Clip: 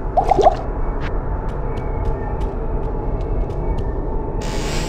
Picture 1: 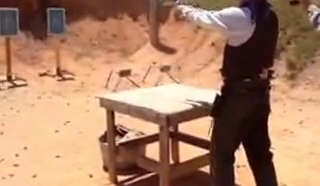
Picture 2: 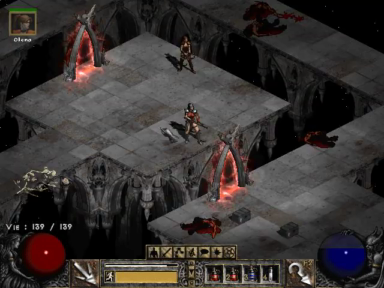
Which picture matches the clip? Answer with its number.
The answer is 2